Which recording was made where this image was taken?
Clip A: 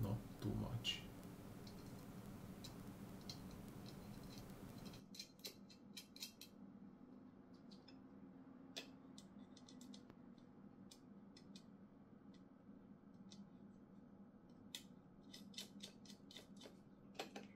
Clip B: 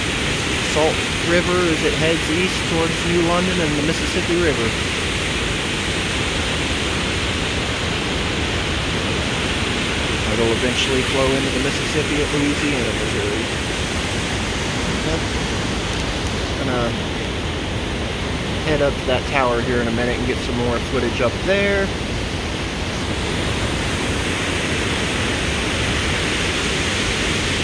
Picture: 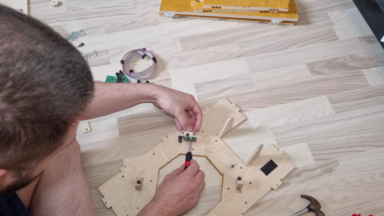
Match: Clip A